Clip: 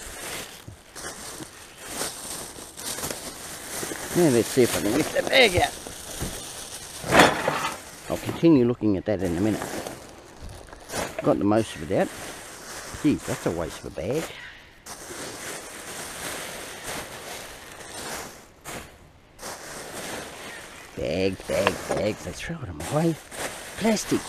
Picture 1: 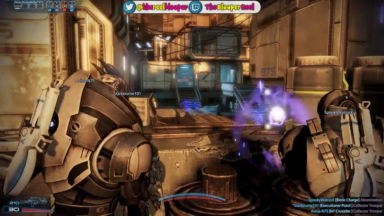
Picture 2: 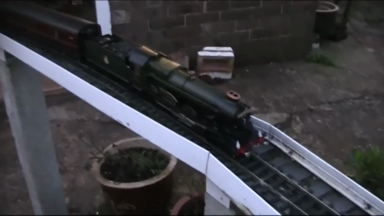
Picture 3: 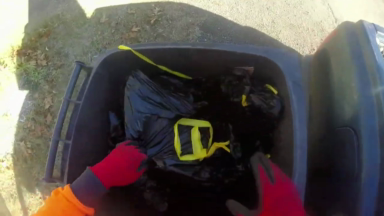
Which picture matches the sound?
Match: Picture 3